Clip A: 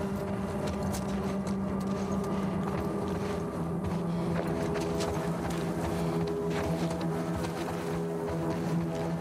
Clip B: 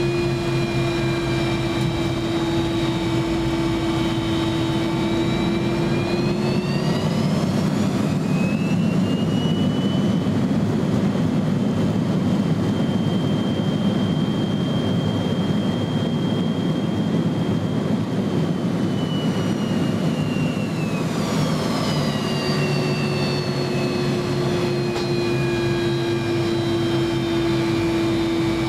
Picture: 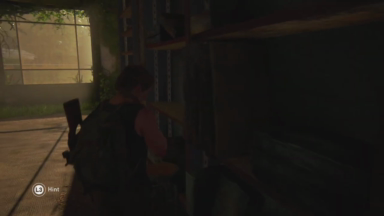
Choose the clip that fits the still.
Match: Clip A